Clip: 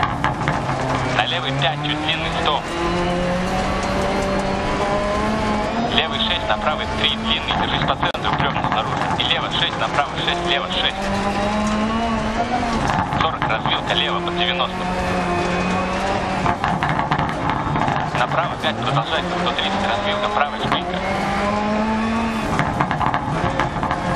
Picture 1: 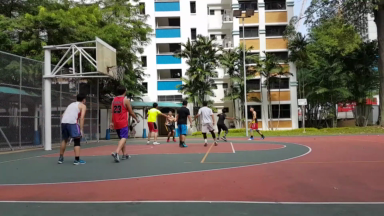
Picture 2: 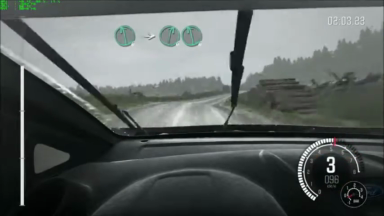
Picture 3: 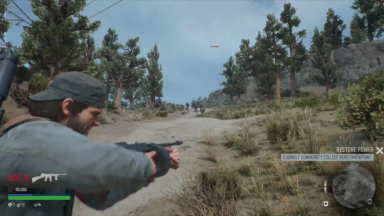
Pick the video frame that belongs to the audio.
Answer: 2